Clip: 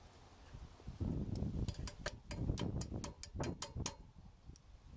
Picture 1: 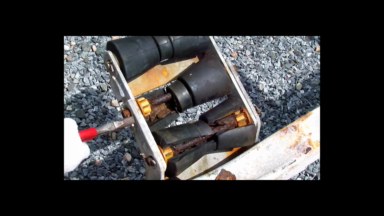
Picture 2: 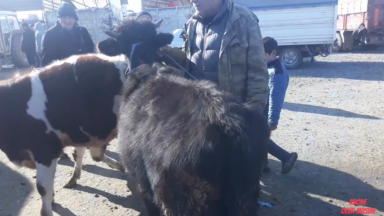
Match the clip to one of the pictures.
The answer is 1